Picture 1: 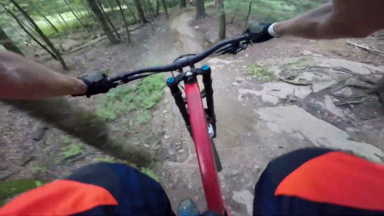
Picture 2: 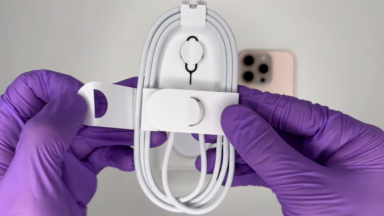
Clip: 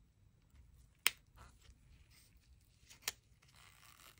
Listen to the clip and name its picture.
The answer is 2